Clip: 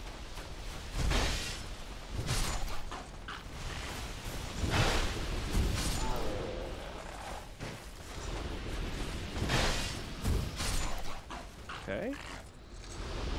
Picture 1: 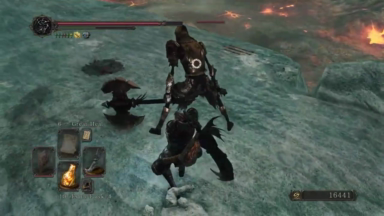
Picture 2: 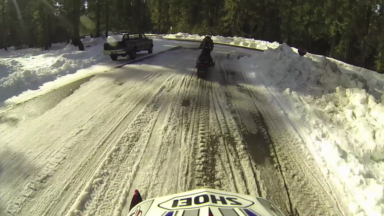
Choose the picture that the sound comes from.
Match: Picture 1